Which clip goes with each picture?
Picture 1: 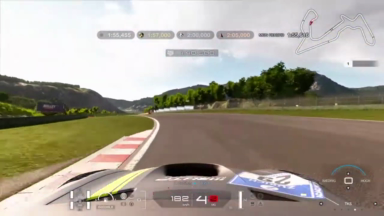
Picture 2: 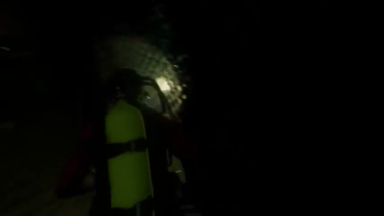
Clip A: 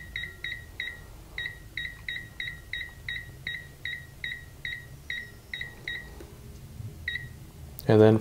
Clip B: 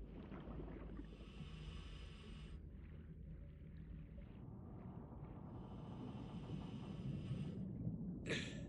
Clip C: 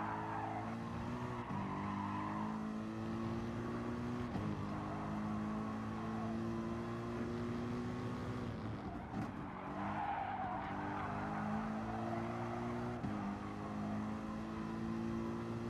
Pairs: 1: C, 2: B